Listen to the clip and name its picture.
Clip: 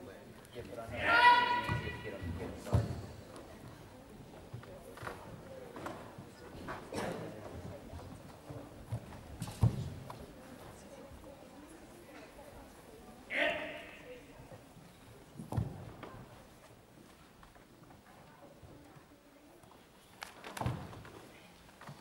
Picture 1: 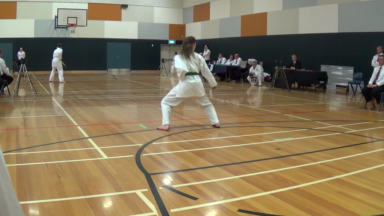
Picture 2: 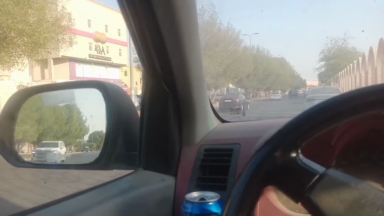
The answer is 1